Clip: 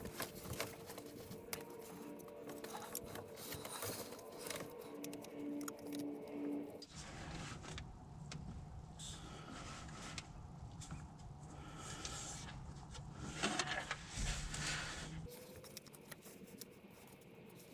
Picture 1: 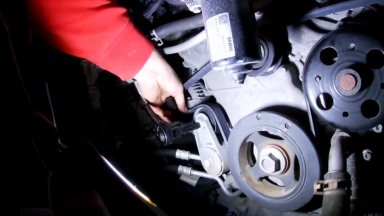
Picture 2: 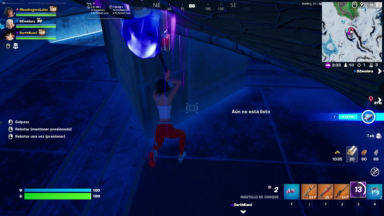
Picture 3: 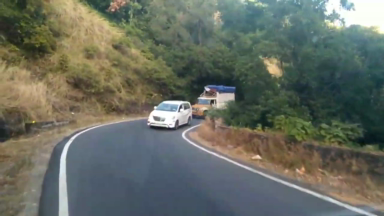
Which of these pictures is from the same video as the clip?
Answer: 1